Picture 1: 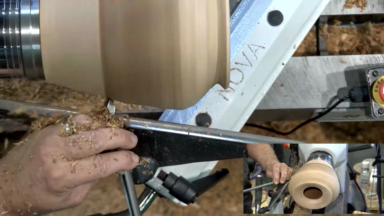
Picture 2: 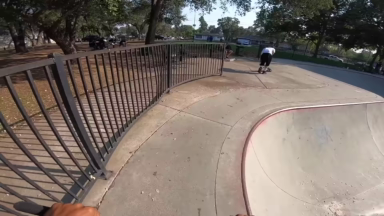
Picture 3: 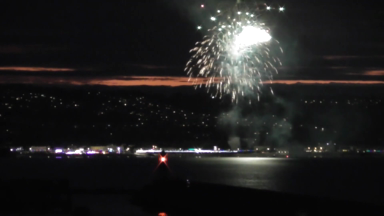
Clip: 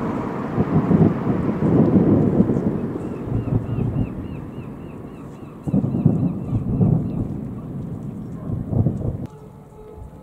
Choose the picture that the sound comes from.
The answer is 3